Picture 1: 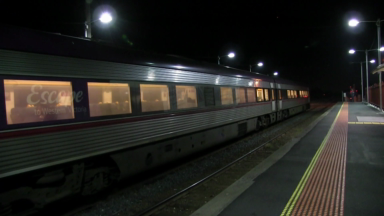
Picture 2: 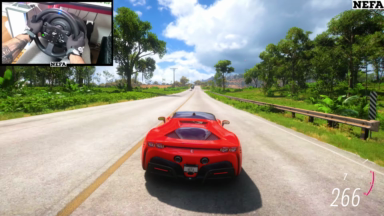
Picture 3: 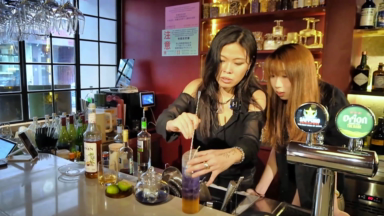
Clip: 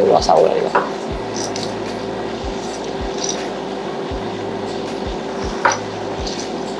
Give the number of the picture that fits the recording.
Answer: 3